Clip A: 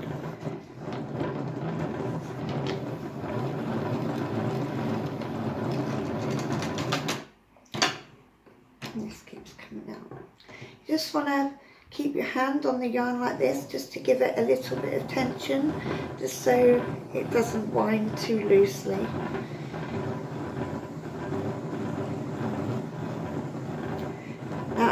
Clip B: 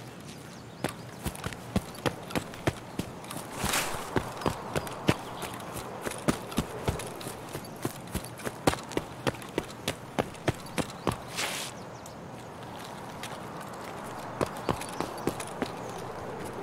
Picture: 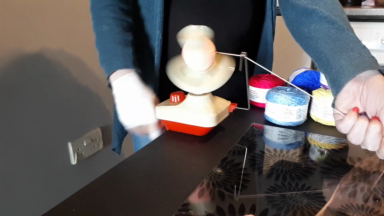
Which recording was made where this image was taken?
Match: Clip A